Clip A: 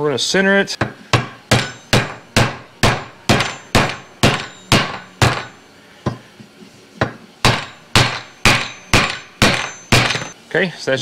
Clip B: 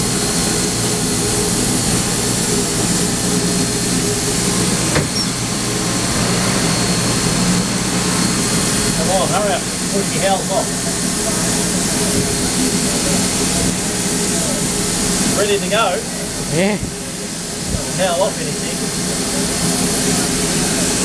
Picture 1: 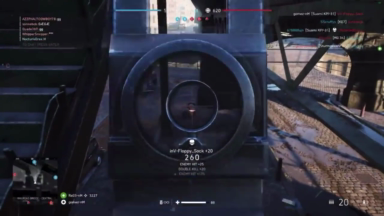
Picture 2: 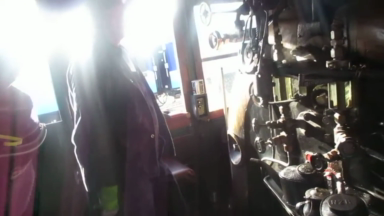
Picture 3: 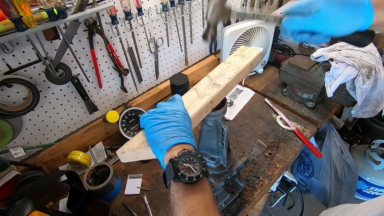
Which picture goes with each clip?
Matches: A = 3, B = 2